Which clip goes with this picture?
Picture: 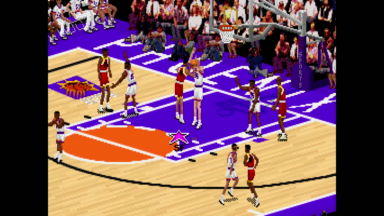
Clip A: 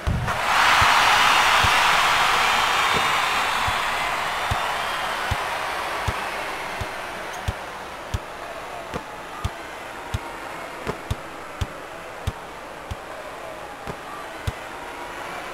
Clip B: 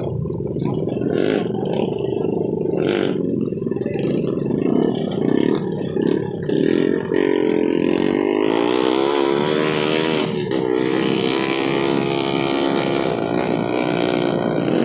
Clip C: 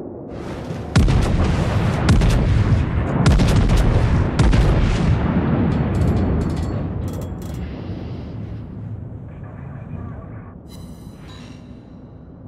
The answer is A